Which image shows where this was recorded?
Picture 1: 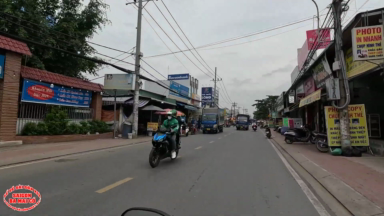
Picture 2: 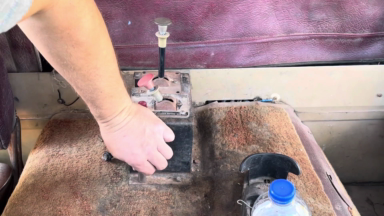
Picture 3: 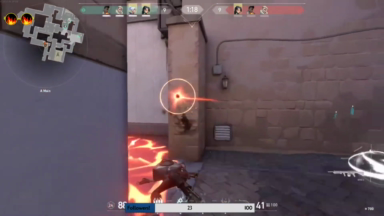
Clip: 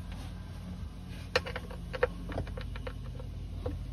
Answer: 2